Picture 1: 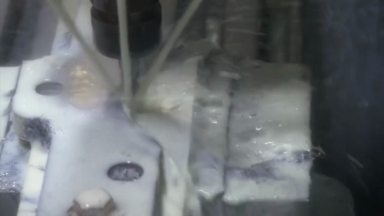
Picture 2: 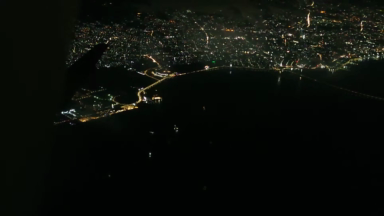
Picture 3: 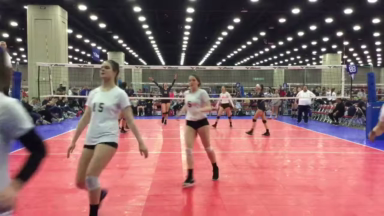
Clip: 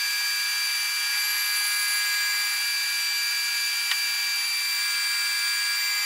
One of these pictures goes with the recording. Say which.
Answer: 1